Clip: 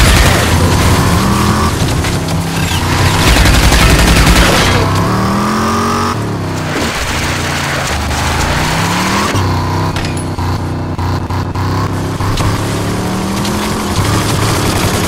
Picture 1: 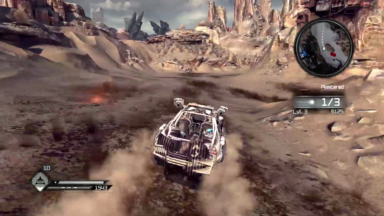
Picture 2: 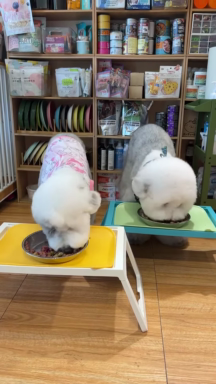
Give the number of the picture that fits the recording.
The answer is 1